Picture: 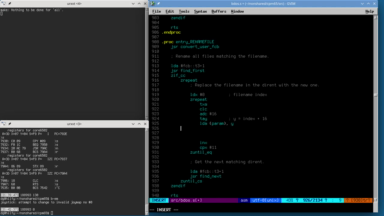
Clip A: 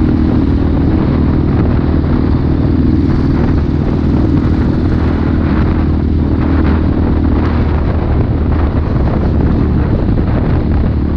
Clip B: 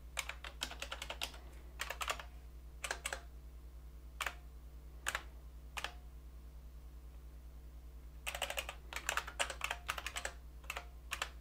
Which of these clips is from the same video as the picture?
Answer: B